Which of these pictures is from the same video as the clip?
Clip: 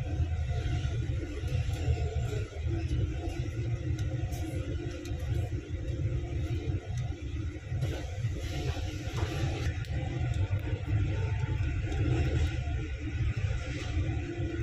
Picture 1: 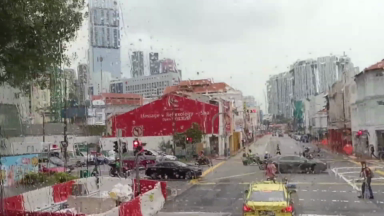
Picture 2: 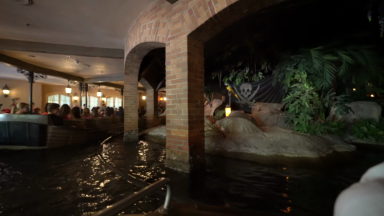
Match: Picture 1